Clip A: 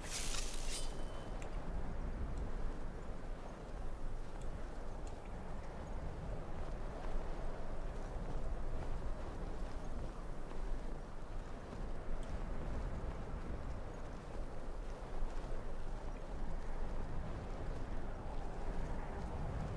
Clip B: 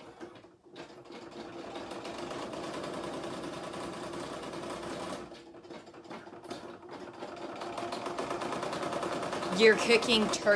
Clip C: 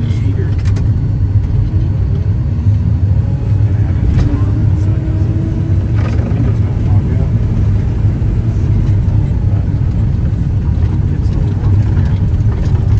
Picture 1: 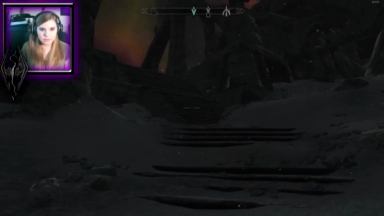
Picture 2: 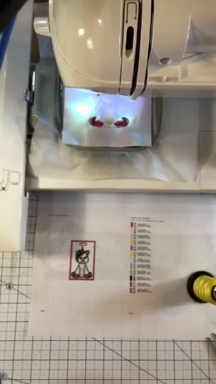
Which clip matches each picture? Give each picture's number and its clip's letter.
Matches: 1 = A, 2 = B